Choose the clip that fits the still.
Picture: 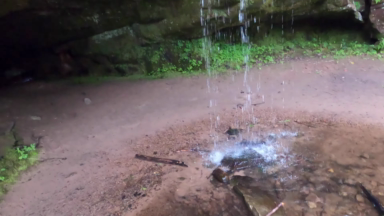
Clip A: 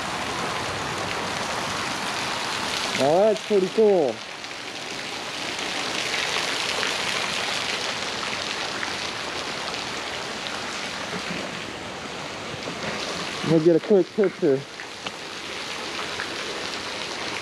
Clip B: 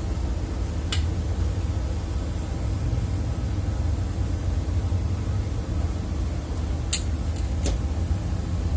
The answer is A